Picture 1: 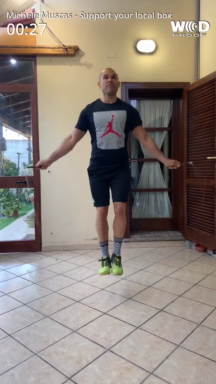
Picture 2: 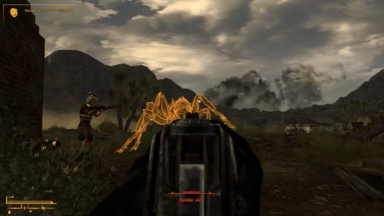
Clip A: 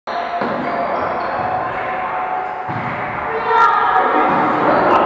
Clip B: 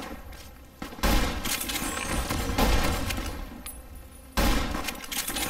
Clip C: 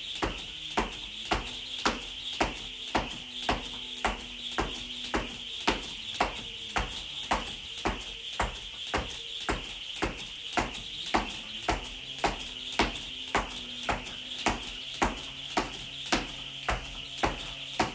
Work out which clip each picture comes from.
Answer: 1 C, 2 B